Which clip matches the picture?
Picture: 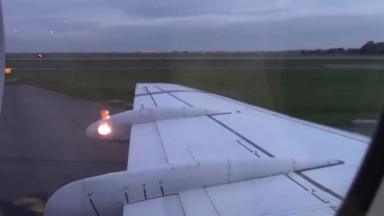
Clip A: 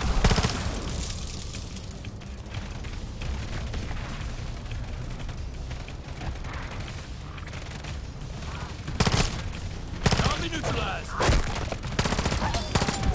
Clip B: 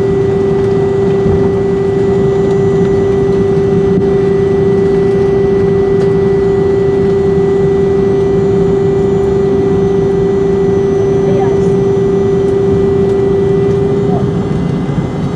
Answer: B